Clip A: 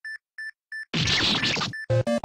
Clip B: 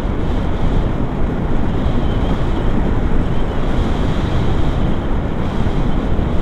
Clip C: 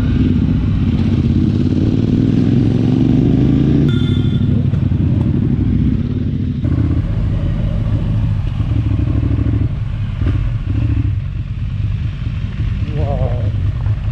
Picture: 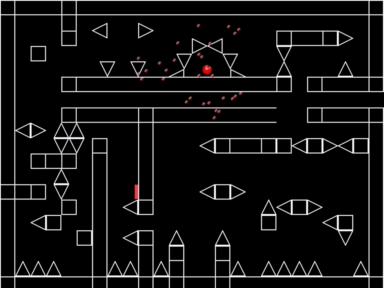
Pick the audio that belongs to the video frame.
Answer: A